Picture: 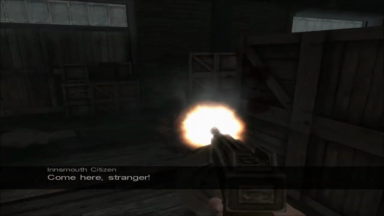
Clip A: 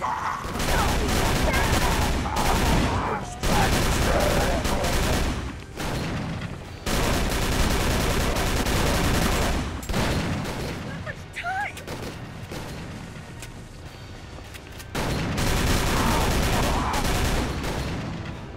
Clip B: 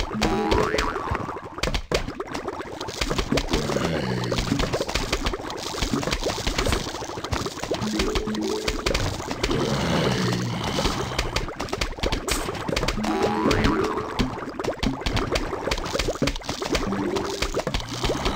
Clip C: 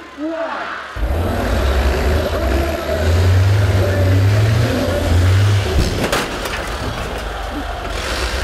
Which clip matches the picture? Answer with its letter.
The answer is A